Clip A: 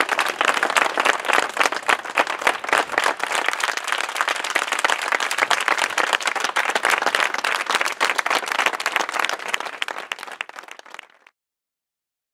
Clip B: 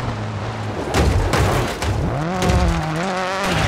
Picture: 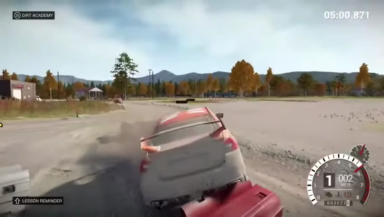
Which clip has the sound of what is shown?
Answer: B